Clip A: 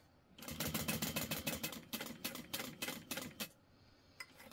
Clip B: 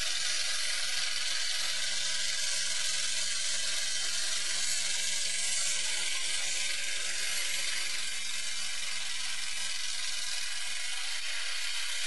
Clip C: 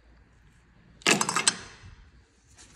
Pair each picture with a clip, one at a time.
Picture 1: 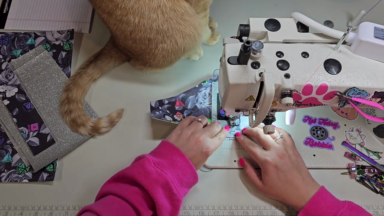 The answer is A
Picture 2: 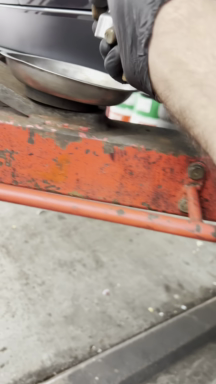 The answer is C